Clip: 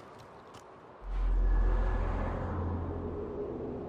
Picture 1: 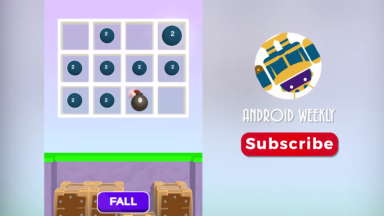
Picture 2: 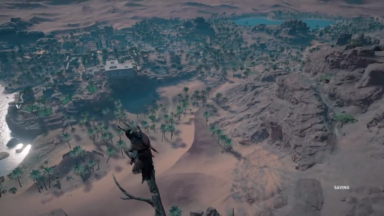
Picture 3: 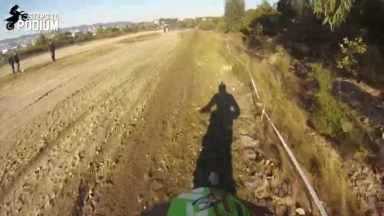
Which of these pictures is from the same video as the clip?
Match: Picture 2